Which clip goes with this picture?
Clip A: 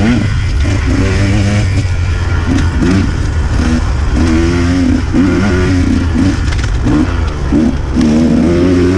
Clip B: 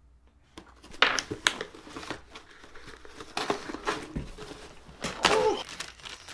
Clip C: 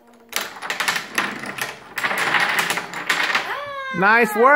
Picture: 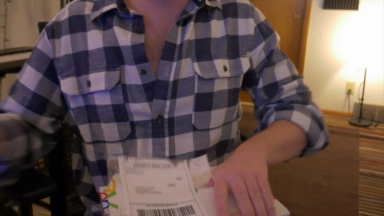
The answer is B